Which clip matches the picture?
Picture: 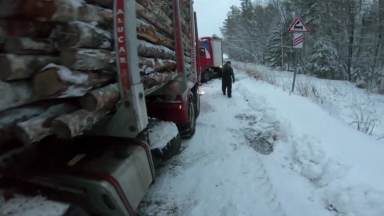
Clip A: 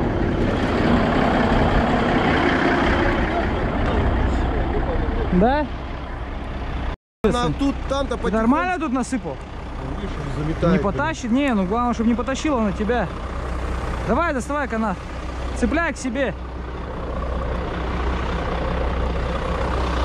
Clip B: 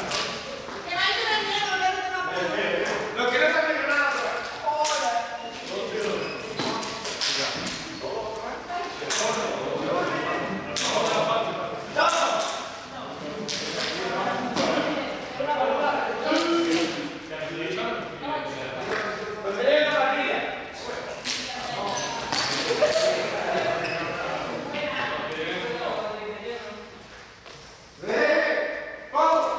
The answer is A